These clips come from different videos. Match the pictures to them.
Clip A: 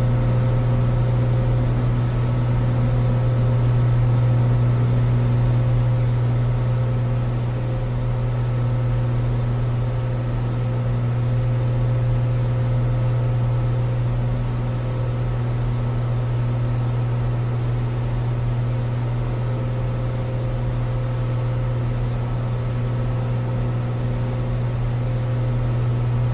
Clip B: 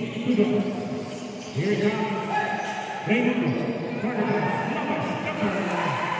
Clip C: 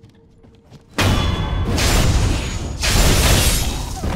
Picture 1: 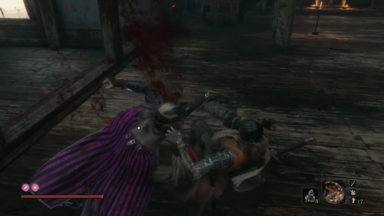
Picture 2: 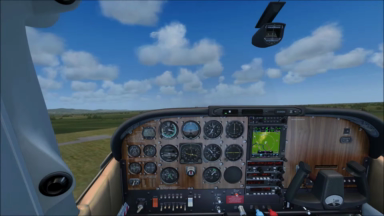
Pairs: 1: C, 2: A